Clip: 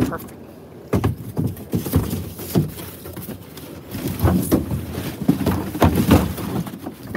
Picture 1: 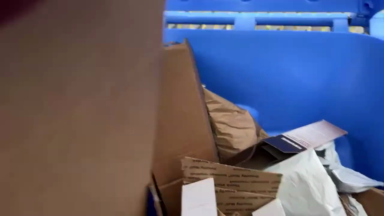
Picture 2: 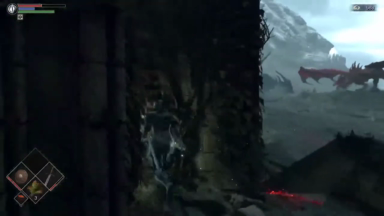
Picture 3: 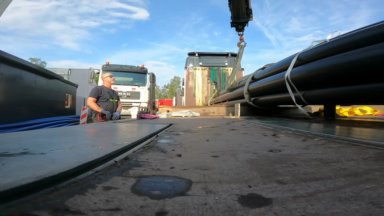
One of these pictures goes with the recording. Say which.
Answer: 1